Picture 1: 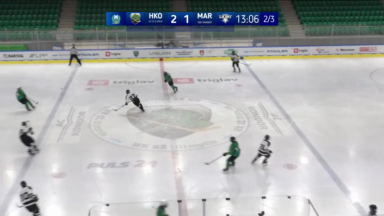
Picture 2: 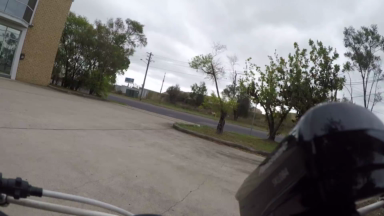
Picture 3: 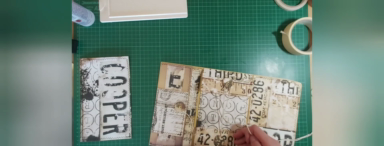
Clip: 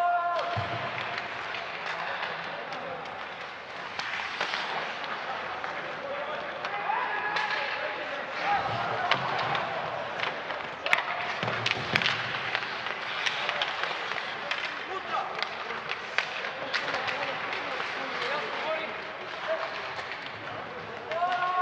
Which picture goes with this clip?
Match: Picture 1